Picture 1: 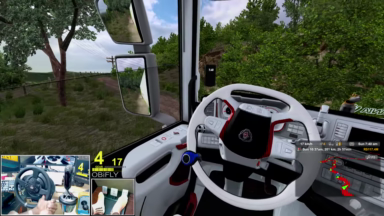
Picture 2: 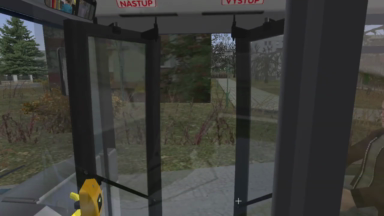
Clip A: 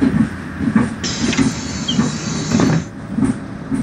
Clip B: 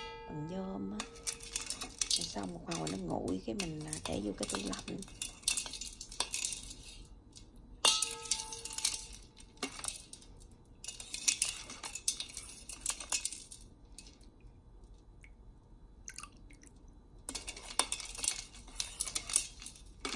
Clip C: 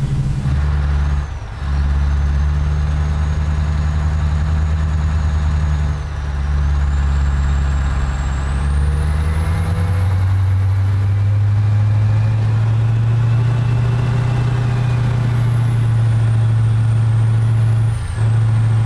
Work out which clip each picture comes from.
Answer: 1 C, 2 A